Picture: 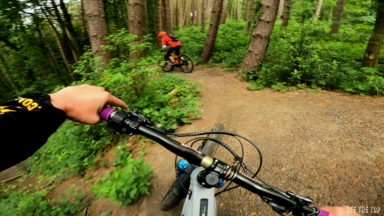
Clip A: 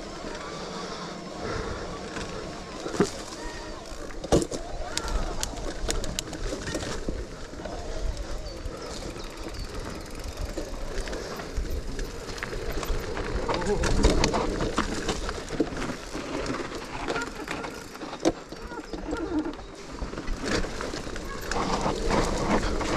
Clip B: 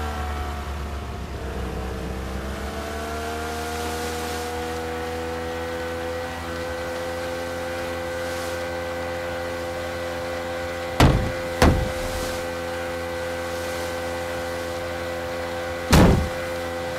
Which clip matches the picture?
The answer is A